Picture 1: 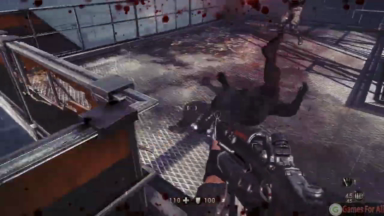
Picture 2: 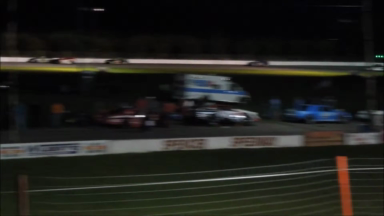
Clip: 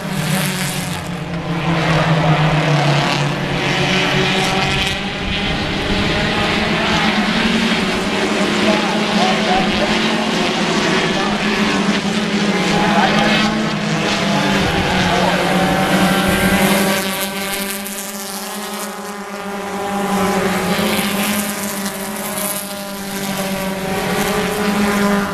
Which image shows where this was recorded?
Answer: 2